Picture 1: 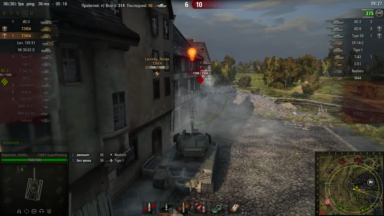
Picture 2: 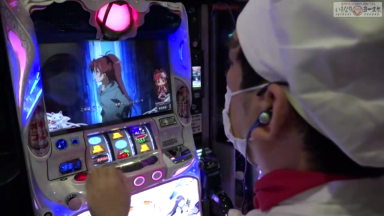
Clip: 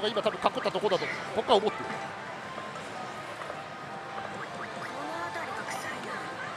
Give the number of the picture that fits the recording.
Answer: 2